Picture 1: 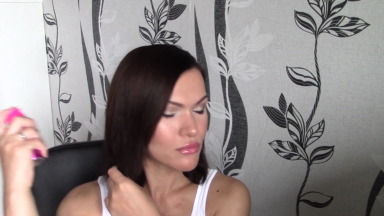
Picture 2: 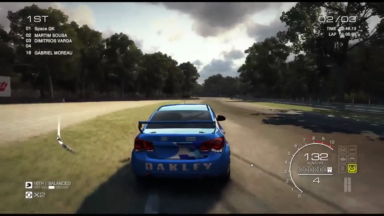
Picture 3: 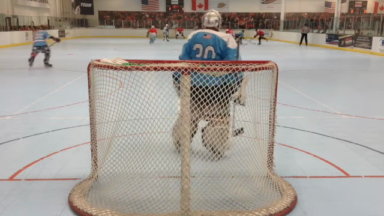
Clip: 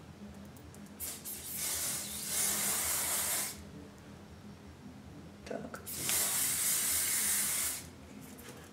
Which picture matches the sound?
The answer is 1